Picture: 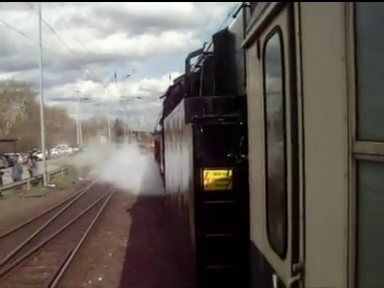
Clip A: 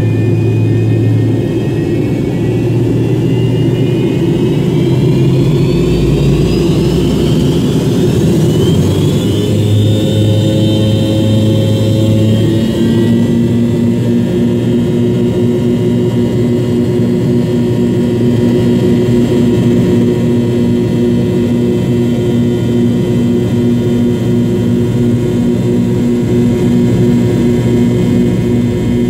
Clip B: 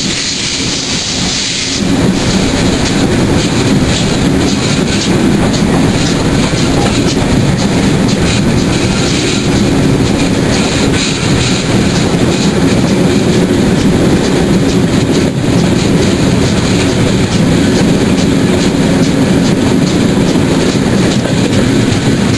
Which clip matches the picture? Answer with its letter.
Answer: B